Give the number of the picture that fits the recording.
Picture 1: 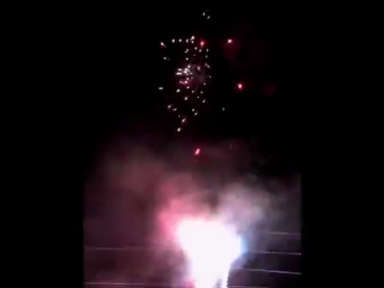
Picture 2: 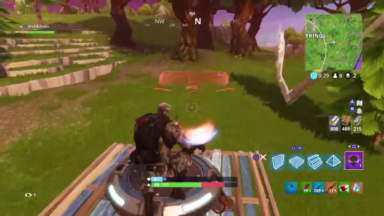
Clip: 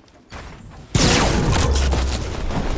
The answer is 2